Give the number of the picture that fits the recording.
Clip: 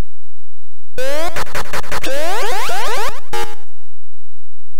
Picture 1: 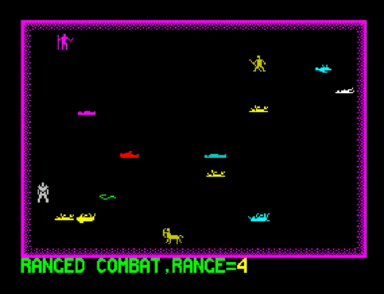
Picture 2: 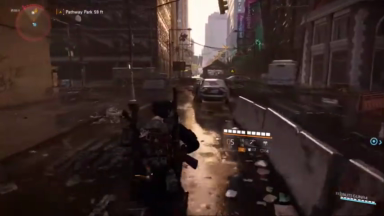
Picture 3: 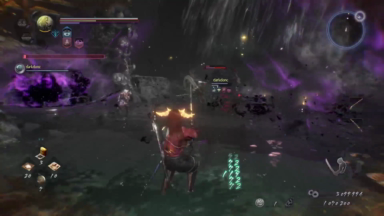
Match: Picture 1